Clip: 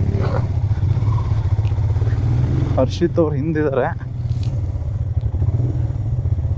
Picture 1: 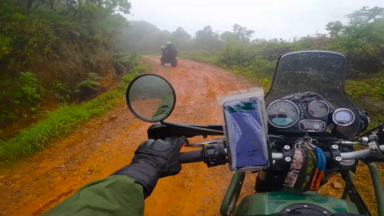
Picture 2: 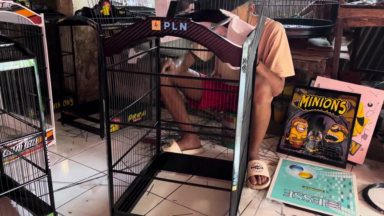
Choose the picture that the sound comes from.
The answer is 1